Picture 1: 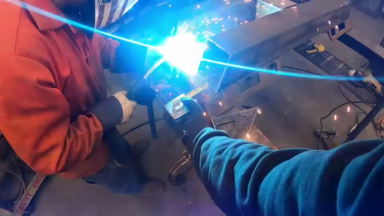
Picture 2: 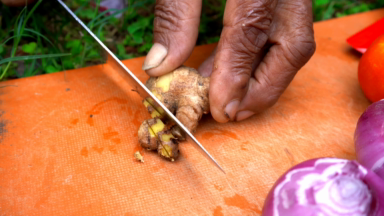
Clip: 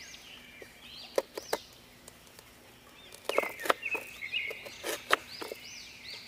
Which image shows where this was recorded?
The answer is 2